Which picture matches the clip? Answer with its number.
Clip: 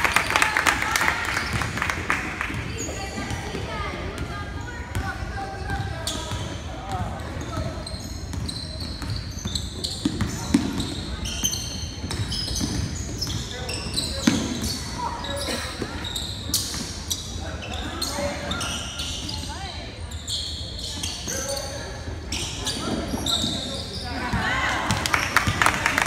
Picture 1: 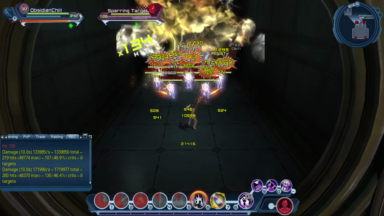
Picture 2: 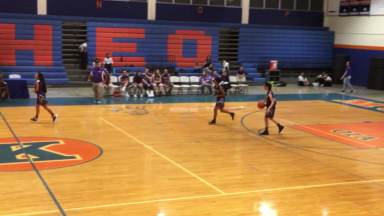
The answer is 2